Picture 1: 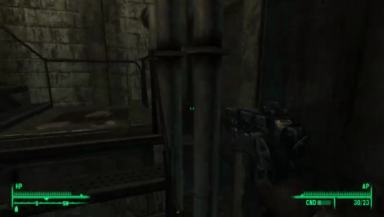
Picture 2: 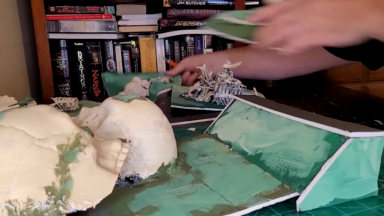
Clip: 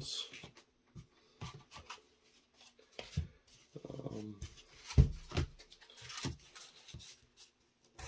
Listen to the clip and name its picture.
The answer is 2